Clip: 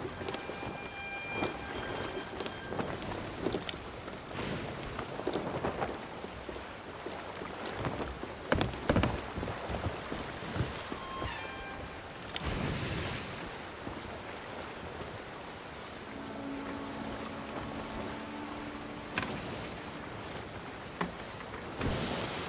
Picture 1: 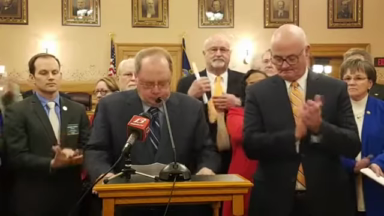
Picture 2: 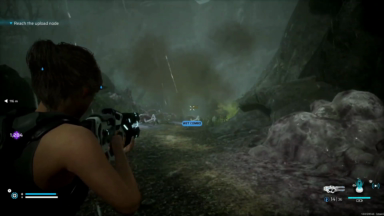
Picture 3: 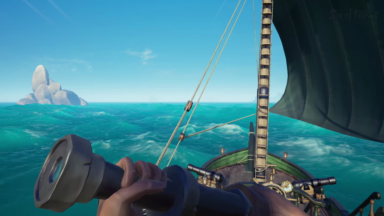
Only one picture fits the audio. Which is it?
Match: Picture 3